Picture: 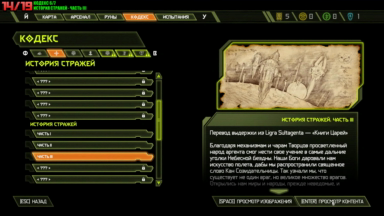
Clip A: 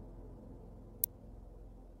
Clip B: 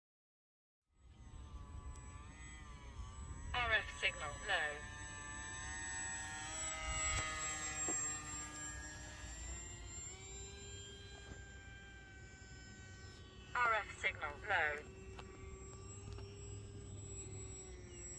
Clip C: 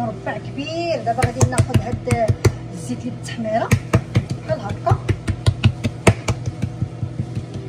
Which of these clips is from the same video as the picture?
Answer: A